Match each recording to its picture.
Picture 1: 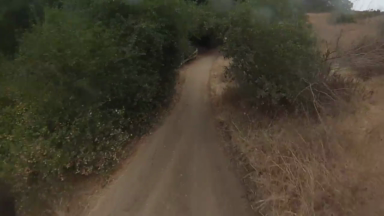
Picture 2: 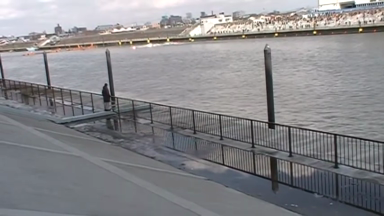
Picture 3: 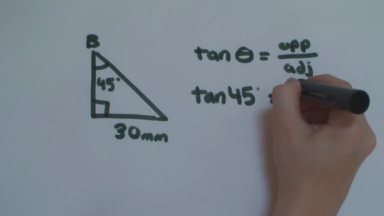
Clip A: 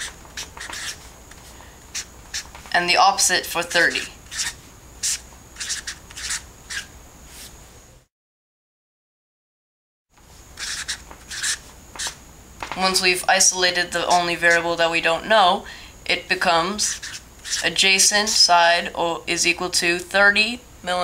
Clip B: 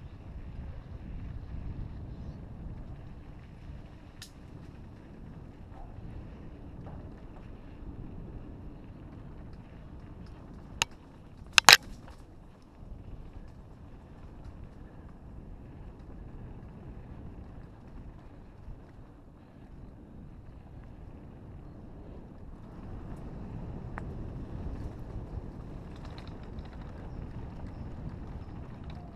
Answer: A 3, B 1